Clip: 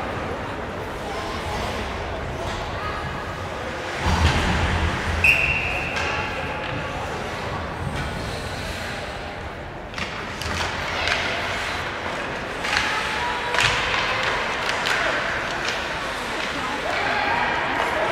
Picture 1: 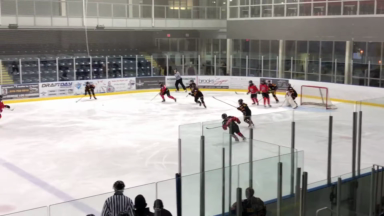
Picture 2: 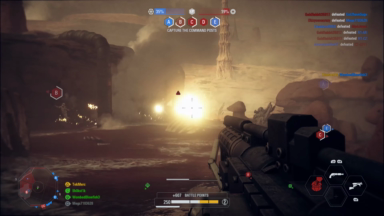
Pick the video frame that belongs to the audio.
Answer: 1